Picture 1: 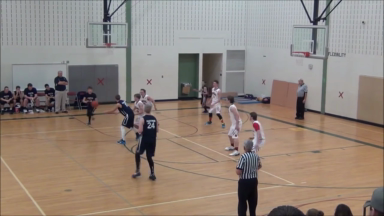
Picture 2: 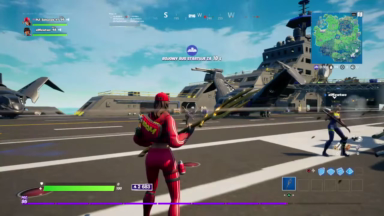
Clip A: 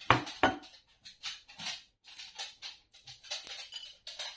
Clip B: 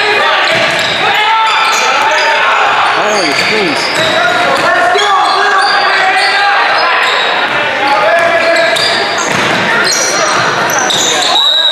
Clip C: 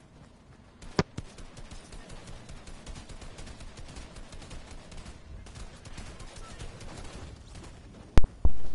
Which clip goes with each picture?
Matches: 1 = B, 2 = C